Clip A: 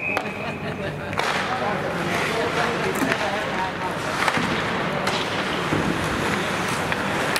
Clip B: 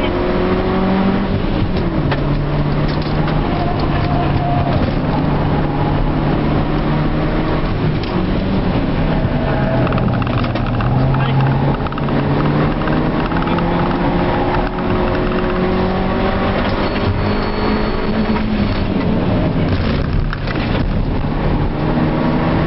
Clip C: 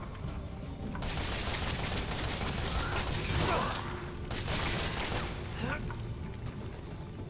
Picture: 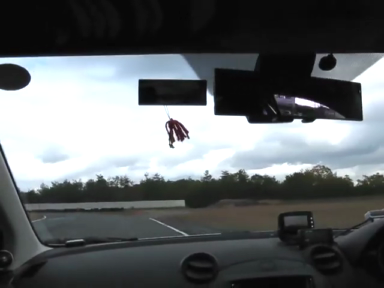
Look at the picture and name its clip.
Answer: B